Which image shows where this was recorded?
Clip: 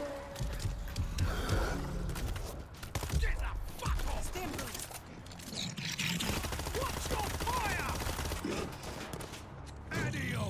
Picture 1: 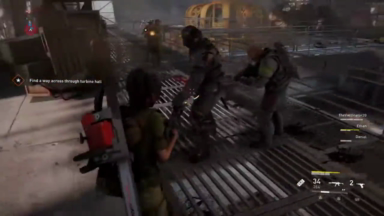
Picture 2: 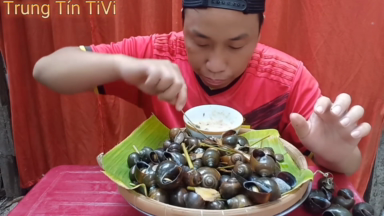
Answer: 1